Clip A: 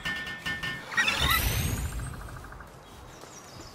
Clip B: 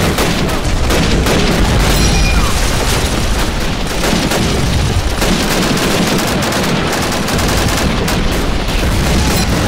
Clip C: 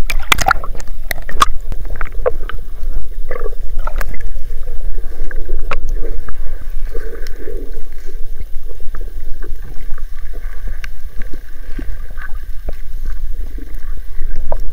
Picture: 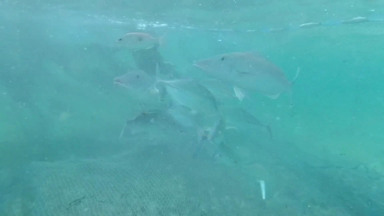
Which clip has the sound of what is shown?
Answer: C